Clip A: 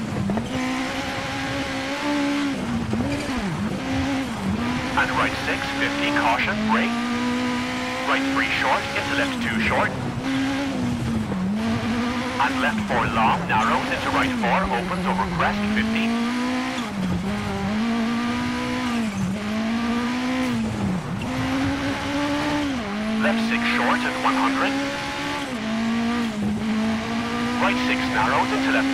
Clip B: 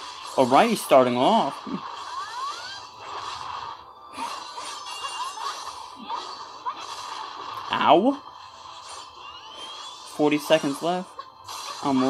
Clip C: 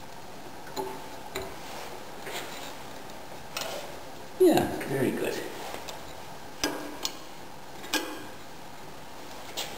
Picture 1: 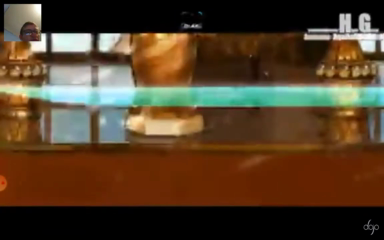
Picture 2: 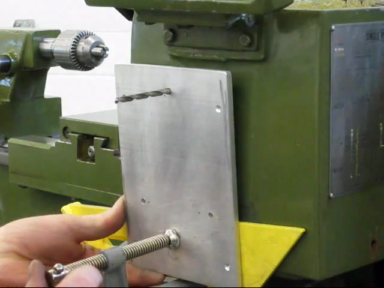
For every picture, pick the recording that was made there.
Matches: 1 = B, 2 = C